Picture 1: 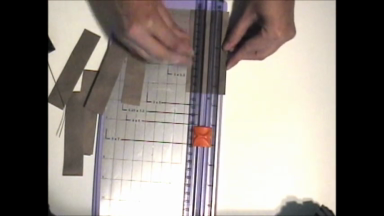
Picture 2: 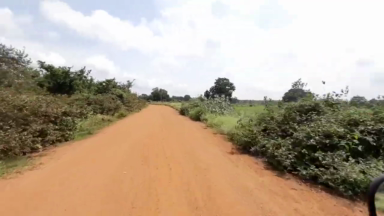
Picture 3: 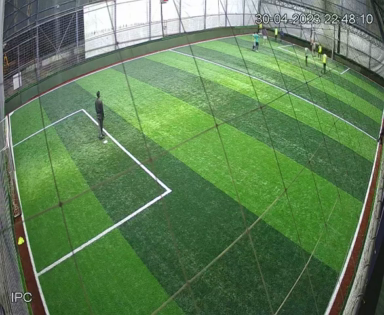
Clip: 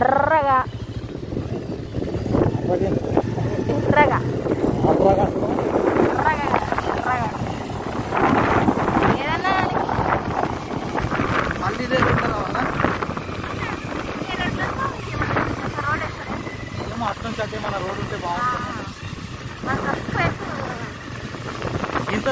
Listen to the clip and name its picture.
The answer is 2